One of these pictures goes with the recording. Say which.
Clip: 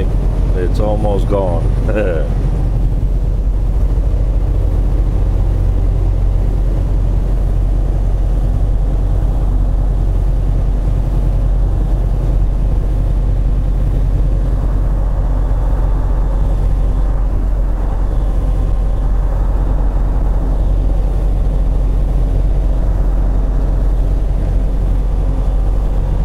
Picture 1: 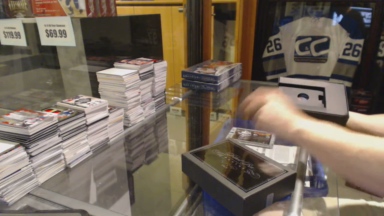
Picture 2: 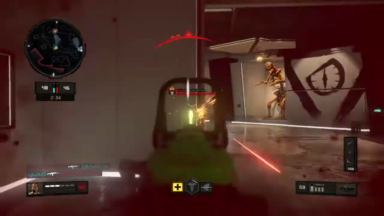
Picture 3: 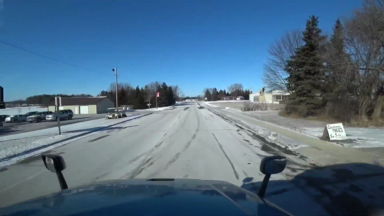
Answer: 3